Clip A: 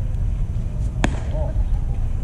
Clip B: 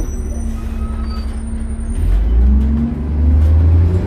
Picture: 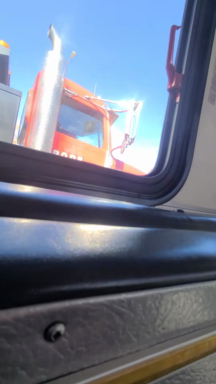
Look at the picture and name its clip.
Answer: B